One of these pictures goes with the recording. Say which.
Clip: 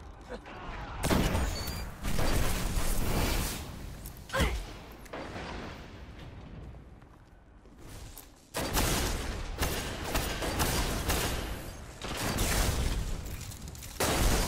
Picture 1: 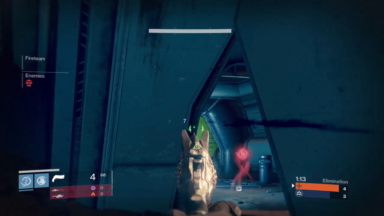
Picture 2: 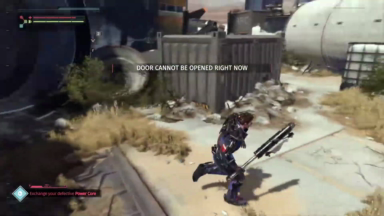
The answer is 1